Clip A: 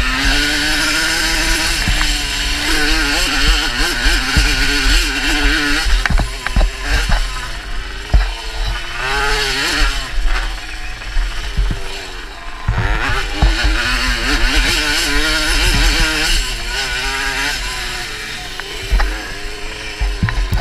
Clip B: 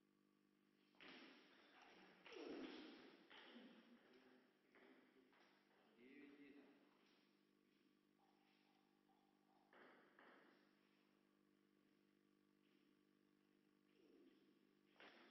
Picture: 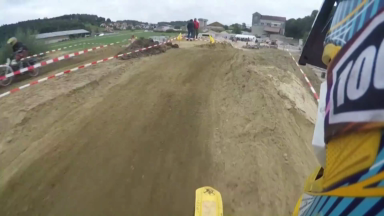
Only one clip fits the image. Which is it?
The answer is A